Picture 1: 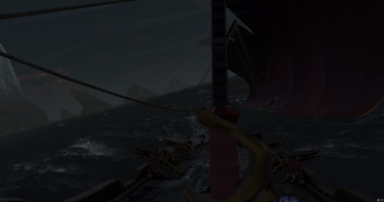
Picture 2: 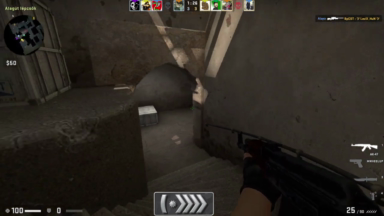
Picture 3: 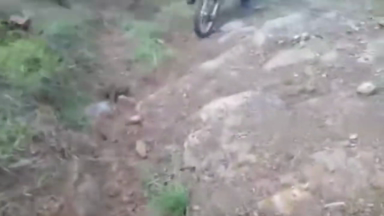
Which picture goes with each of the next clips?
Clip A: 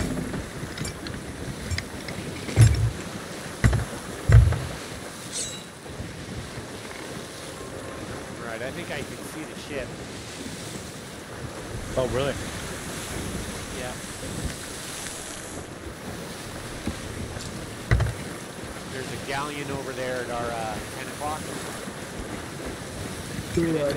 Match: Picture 1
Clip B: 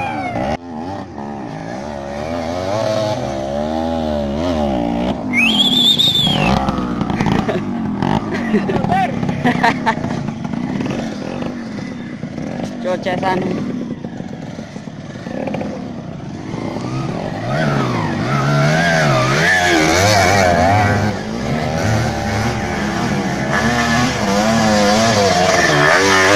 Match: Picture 3